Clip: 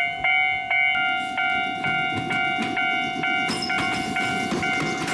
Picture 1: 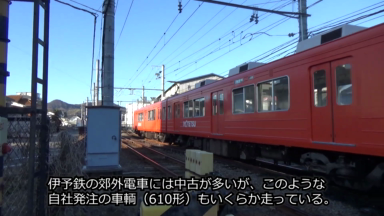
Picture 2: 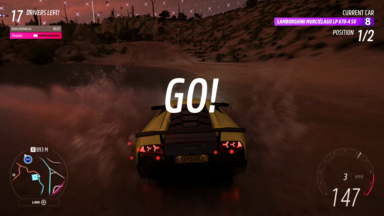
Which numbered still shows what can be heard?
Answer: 1